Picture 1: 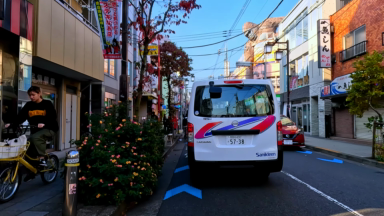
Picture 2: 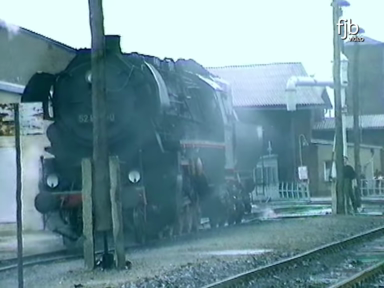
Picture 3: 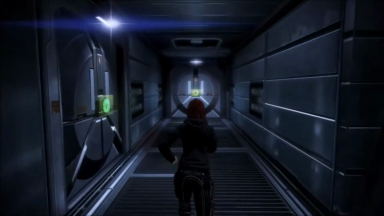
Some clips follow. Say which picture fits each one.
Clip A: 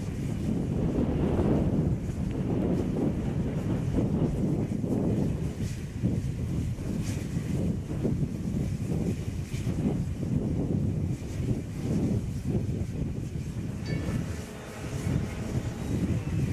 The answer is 2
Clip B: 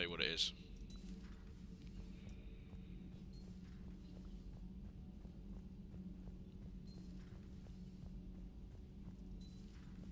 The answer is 3